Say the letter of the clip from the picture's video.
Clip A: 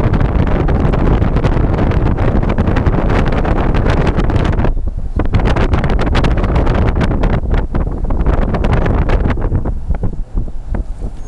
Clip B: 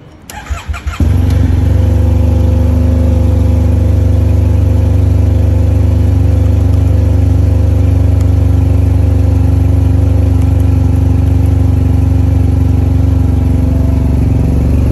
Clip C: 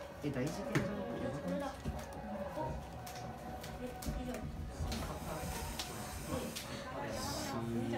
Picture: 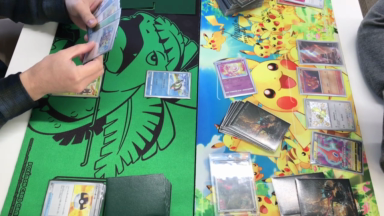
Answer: C